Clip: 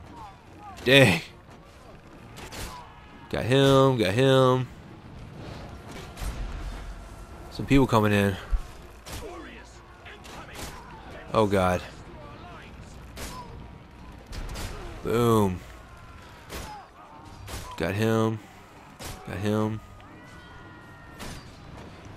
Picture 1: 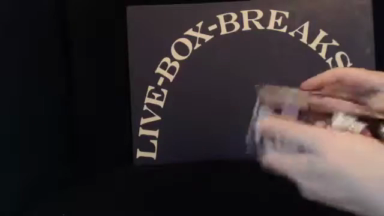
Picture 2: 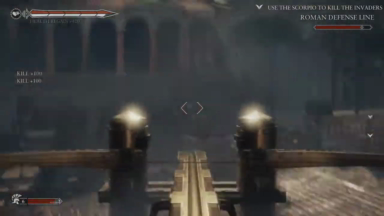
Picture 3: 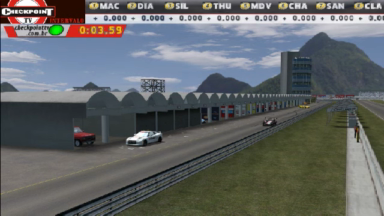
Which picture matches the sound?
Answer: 2